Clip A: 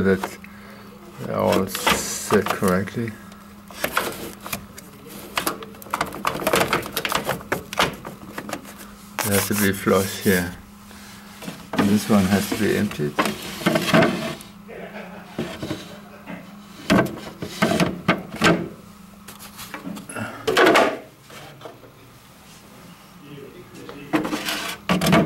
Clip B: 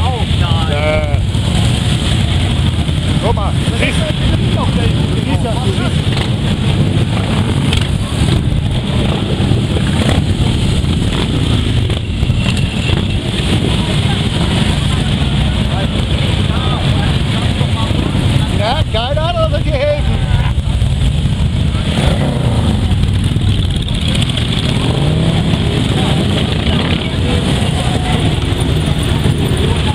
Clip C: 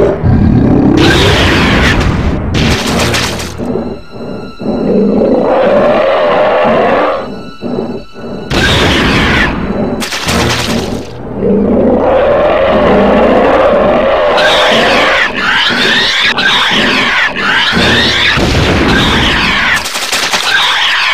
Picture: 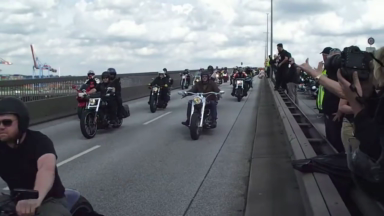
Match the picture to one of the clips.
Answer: B